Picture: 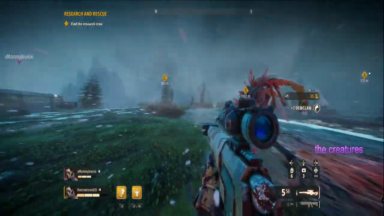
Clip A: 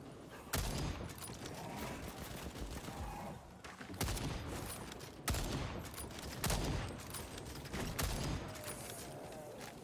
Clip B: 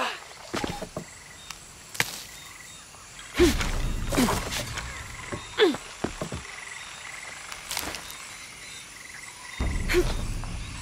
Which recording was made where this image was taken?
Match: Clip A